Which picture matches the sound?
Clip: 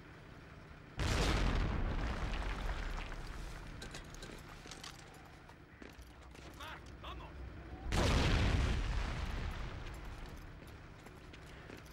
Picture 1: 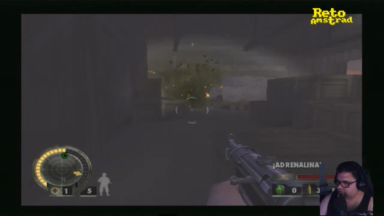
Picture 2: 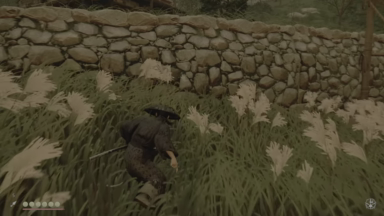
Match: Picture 1